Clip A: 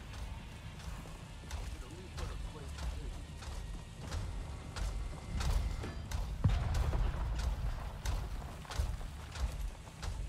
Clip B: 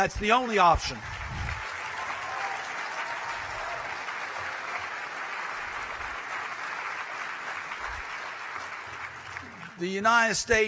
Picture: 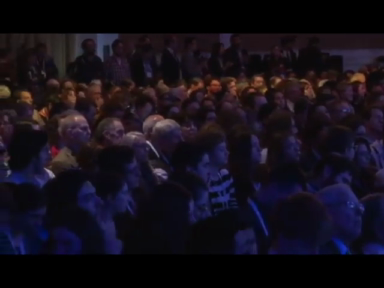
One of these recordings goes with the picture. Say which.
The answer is B